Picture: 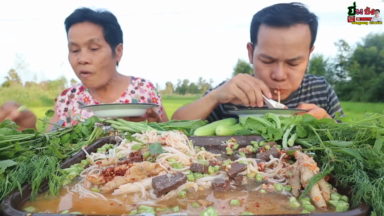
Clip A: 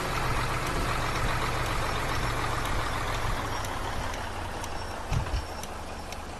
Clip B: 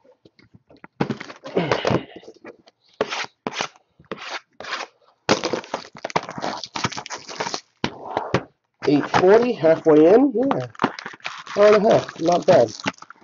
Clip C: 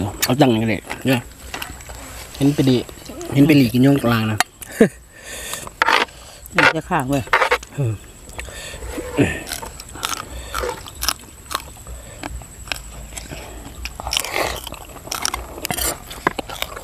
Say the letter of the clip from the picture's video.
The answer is C